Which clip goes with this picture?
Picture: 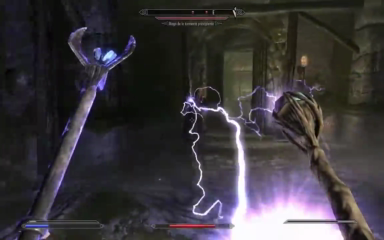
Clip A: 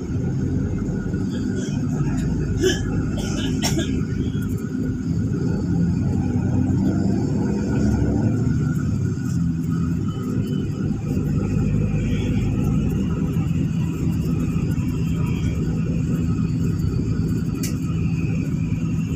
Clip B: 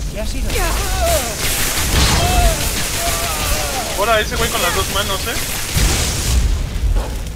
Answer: B